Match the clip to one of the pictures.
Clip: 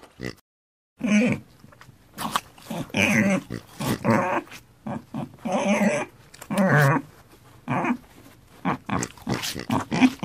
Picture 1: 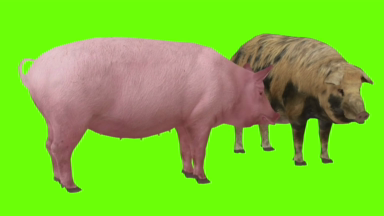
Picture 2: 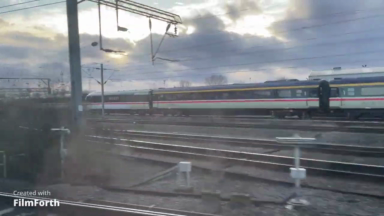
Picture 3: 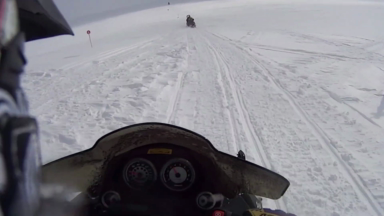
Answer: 1